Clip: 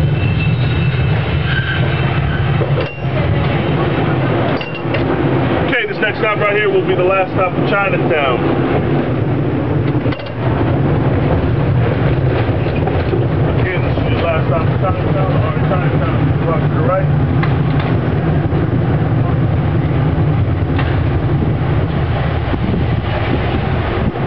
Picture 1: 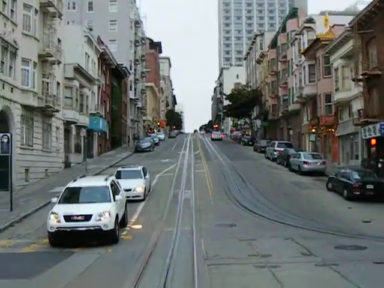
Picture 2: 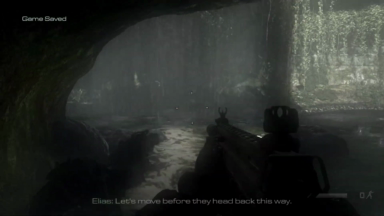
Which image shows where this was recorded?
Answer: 1